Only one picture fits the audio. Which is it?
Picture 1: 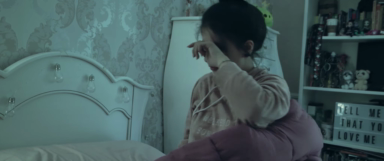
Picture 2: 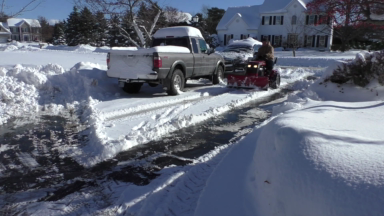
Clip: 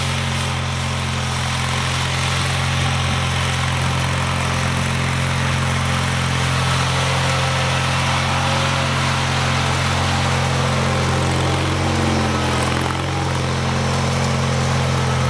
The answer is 2